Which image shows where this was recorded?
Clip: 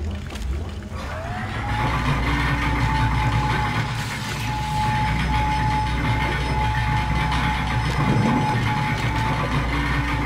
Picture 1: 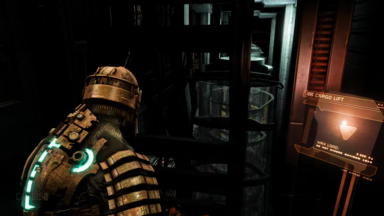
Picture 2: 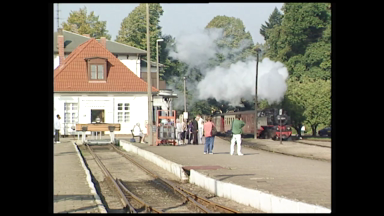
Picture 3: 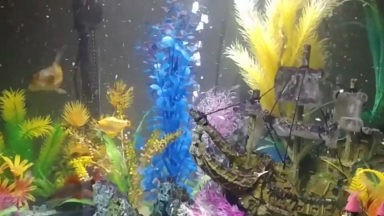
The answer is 1